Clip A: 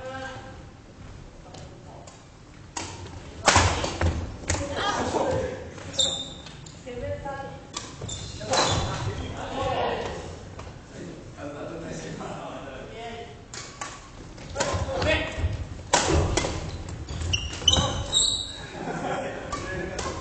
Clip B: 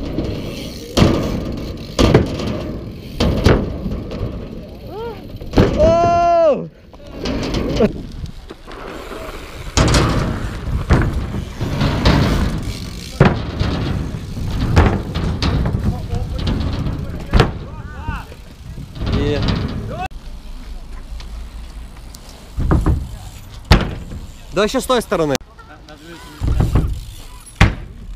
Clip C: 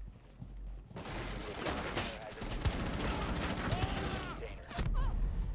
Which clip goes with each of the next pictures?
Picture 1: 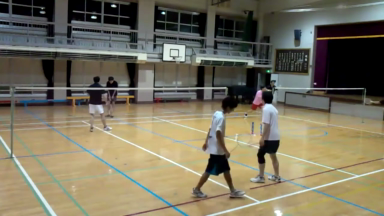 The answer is A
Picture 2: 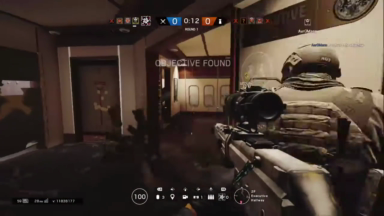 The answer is C